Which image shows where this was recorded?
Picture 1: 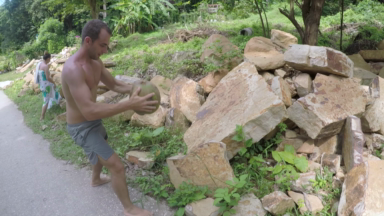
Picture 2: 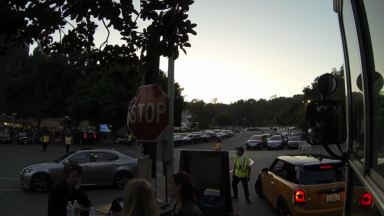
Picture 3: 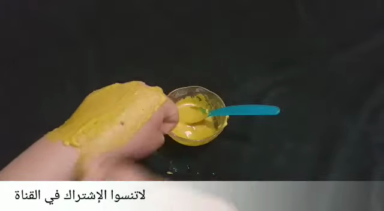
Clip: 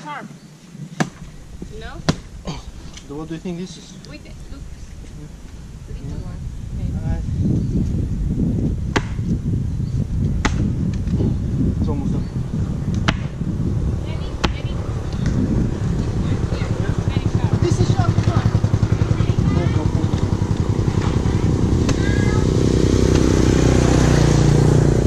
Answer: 1